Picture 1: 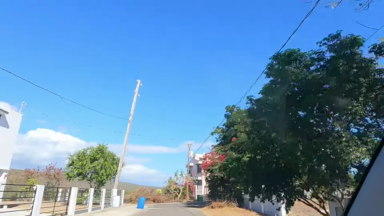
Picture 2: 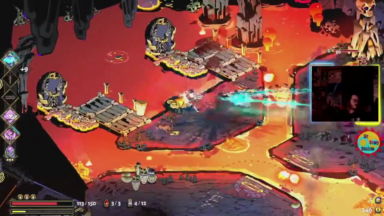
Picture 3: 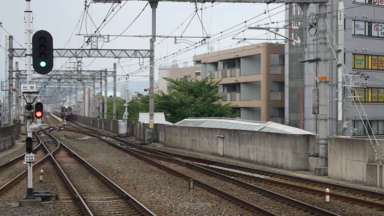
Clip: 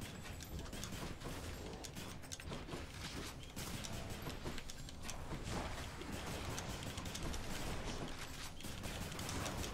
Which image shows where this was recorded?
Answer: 2